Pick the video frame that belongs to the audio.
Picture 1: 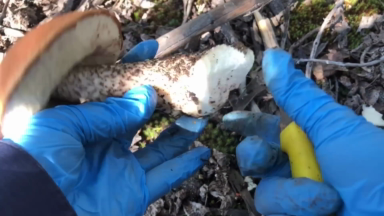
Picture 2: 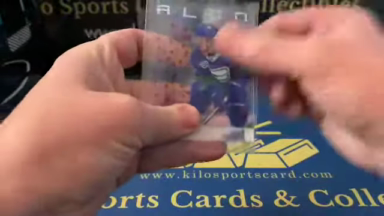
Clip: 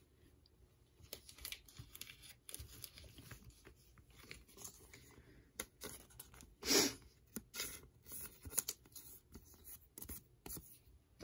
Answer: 2